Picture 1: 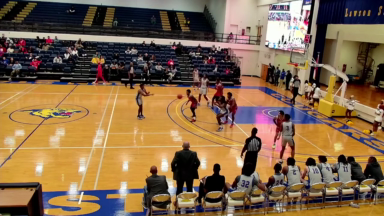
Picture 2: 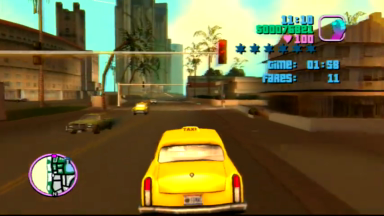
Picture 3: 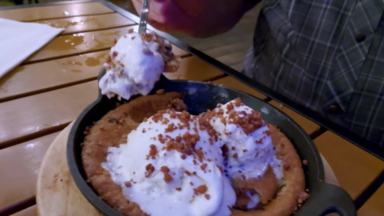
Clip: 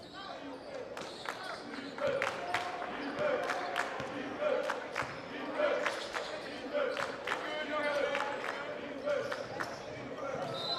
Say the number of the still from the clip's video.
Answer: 1